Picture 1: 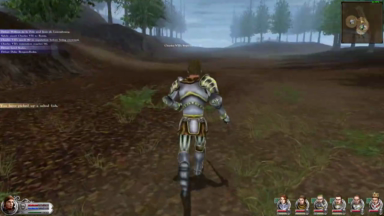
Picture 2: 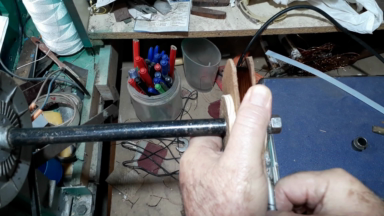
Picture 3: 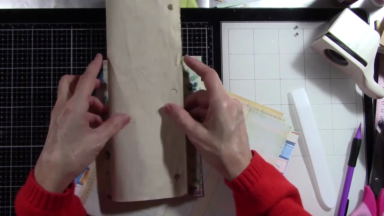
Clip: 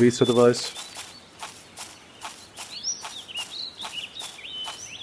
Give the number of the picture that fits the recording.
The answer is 1